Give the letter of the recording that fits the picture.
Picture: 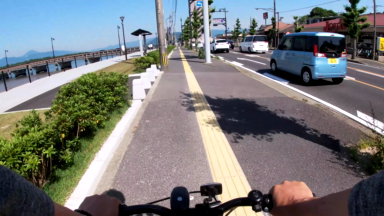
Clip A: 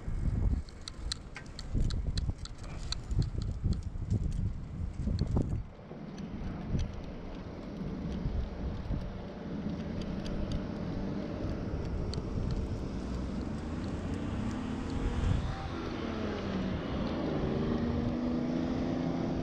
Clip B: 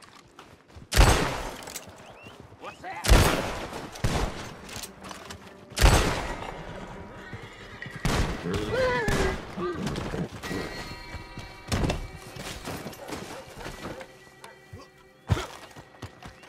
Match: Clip A